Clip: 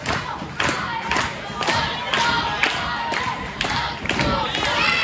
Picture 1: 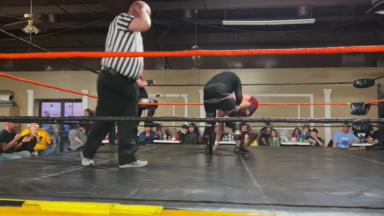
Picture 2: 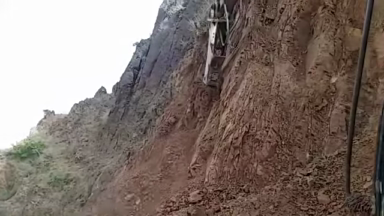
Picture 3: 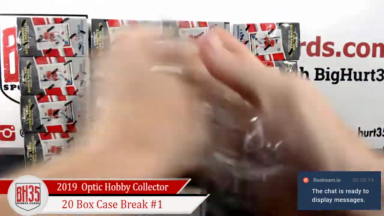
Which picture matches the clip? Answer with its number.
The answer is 1